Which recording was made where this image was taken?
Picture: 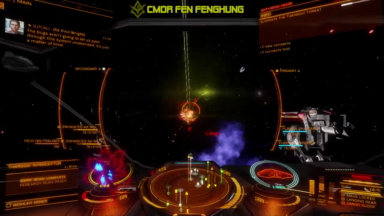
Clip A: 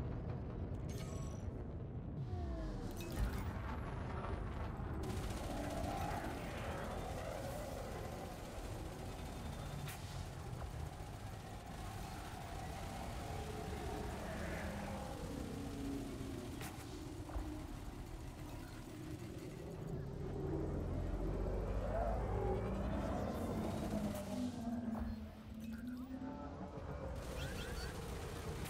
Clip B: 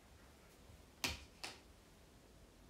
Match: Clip A